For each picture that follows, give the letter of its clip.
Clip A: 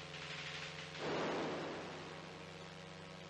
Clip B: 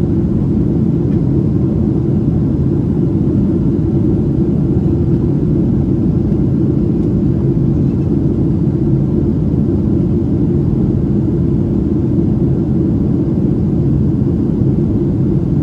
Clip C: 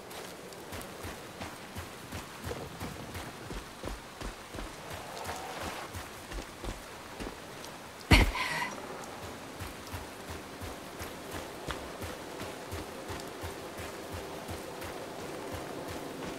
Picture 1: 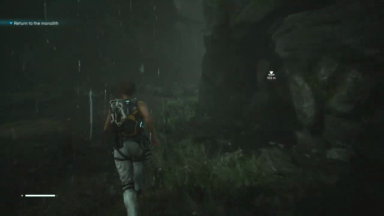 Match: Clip C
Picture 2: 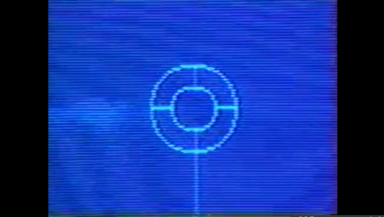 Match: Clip A